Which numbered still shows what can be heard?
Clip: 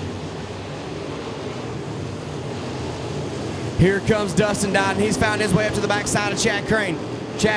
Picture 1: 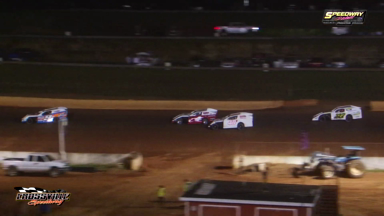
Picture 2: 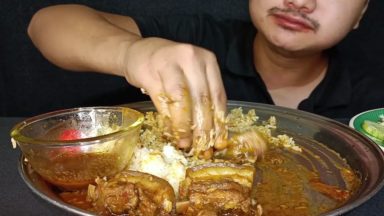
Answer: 1